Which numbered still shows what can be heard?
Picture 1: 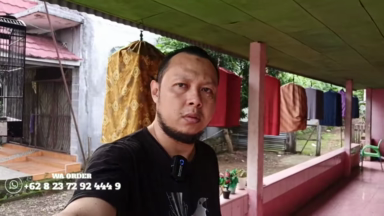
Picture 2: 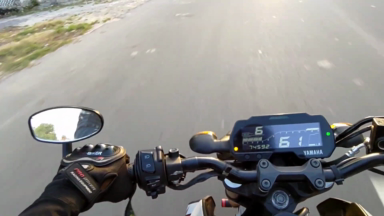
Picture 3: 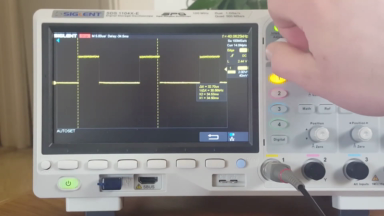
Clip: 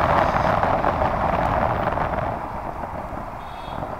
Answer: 2